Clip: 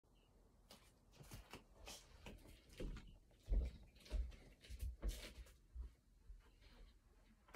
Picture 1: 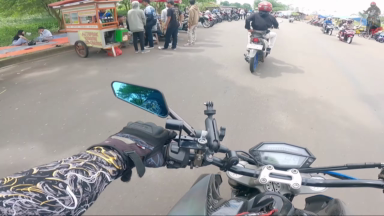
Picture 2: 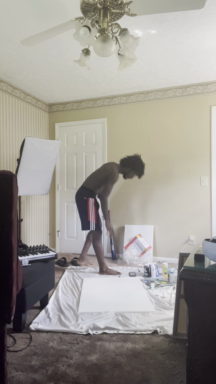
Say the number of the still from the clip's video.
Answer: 2